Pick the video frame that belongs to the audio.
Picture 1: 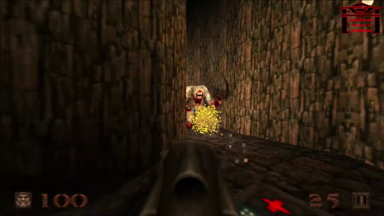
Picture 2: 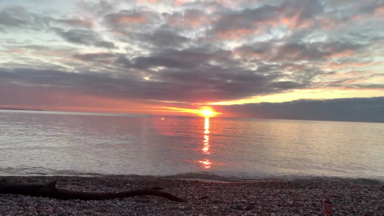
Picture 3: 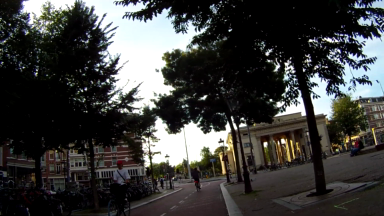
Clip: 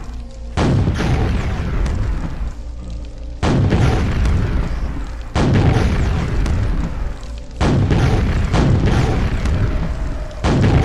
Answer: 1